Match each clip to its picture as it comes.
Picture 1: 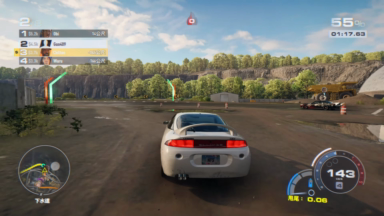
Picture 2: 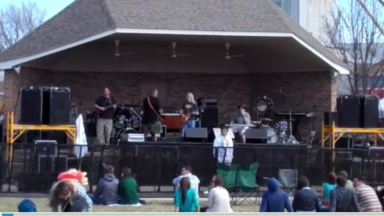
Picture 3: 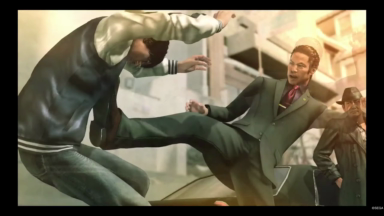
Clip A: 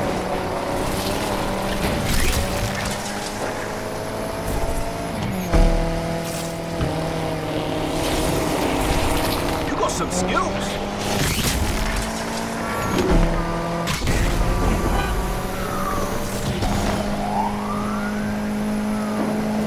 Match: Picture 1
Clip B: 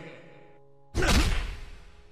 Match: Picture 3